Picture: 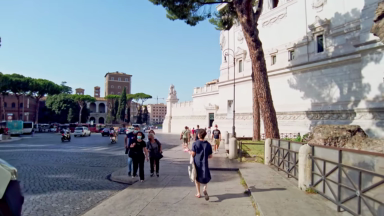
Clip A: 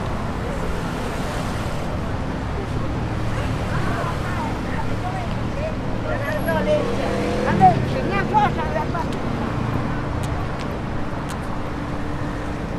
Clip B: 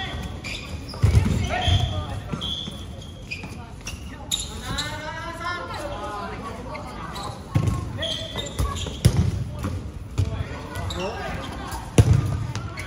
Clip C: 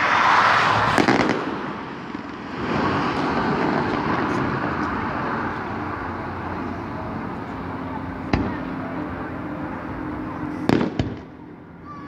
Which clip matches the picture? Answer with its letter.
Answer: A